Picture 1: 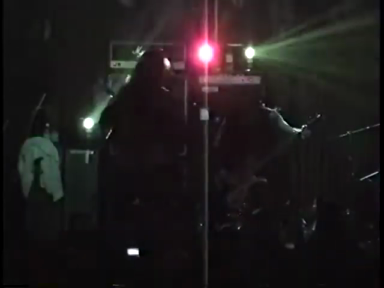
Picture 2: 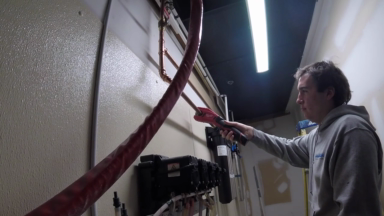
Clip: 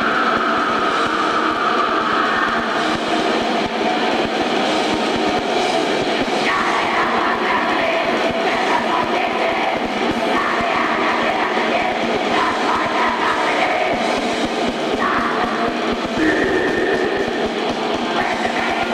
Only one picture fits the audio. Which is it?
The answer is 1